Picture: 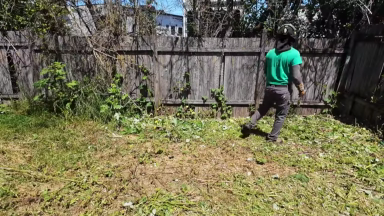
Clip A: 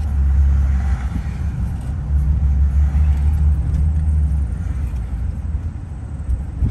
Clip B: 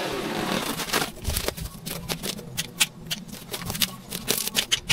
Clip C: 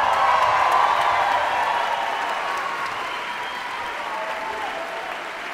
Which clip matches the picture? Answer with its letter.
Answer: B